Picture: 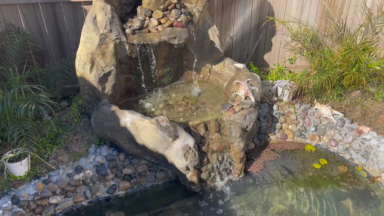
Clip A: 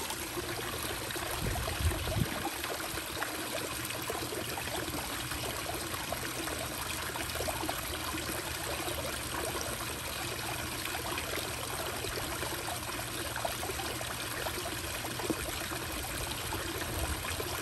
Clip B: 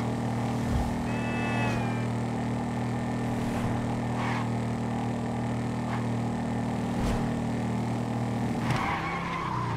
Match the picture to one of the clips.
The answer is A